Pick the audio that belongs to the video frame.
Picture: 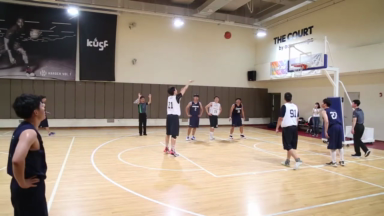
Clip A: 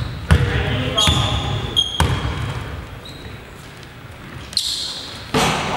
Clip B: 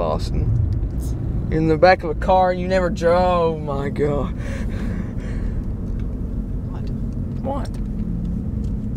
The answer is A